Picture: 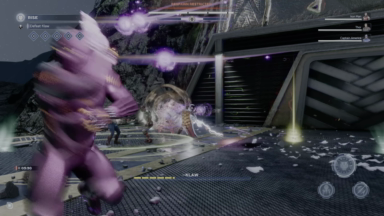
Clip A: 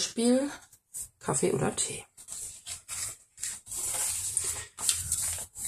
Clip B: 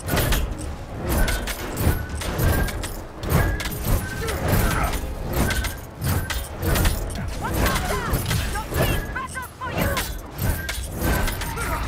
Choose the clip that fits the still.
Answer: B